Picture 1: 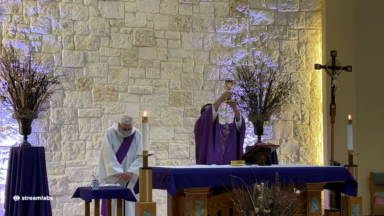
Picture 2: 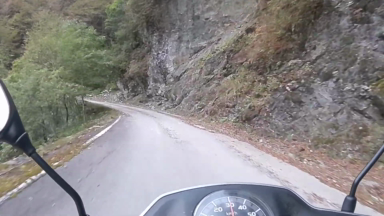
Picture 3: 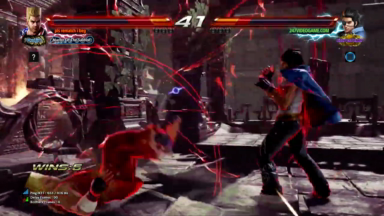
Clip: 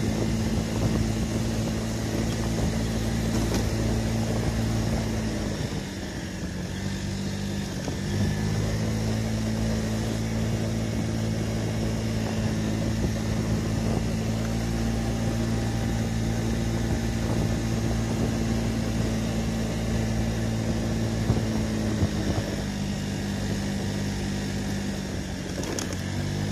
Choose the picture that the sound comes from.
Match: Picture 2